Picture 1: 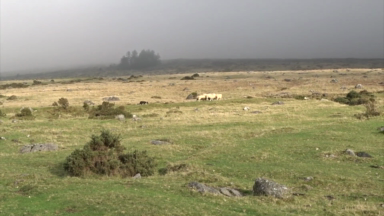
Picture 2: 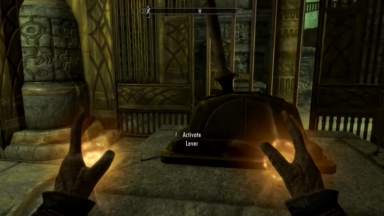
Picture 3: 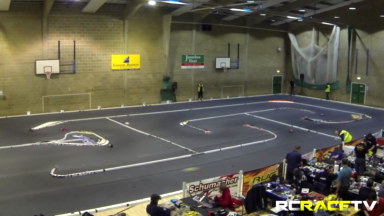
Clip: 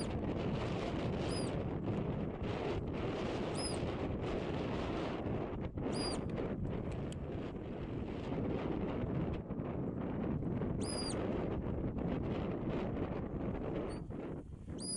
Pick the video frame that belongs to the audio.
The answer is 1